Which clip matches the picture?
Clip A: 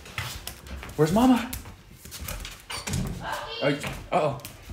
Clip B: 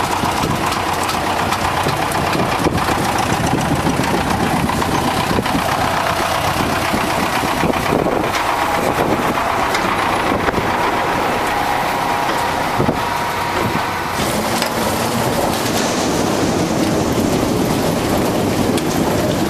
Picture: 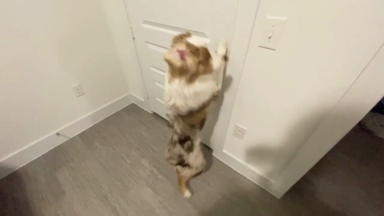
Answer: A